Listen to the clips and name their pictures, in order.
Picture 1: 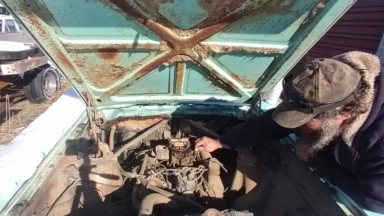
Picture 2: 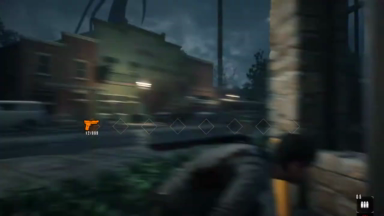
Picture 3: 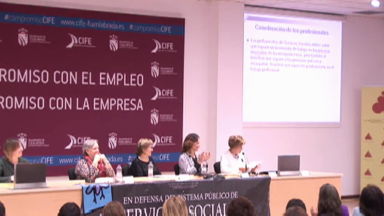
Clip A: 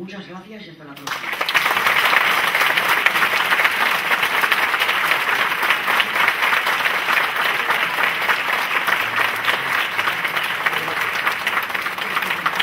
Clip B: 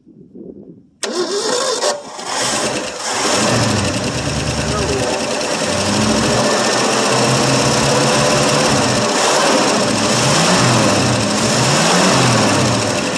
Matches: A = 3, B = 1